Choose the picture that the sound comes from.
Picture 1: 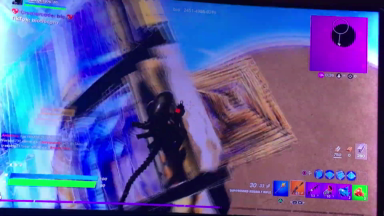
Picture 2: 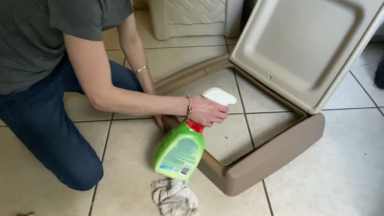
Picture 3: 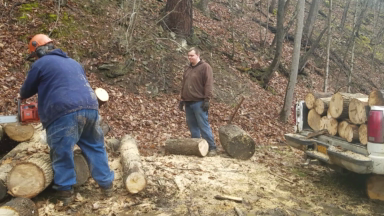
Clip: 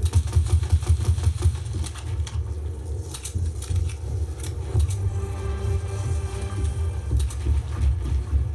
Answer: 1